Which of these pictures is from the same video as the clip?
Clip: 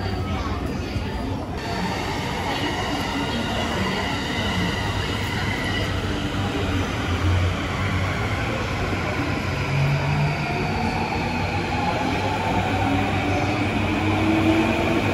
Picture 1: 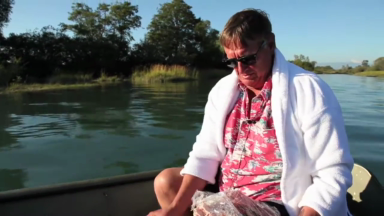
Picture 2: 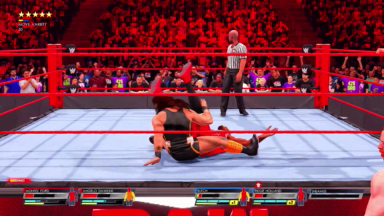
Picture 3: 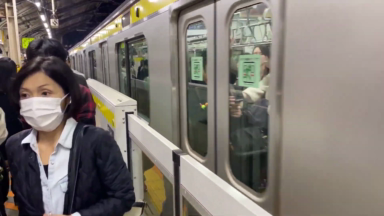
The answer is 3